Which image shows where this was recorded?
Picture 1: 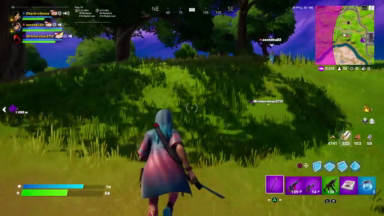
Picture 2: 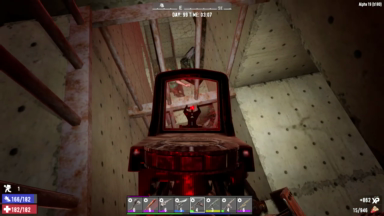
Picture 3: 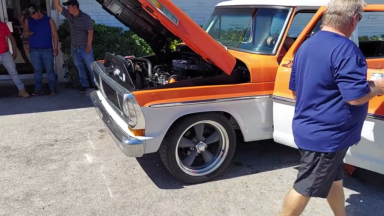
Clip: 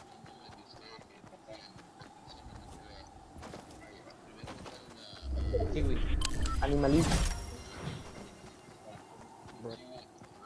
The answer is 1